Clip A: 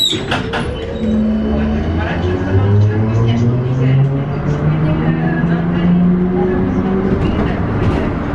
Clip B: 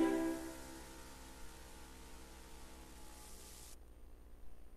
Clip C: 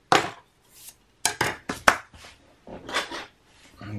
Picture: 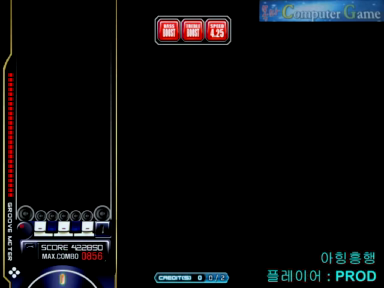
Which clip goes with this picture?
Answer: B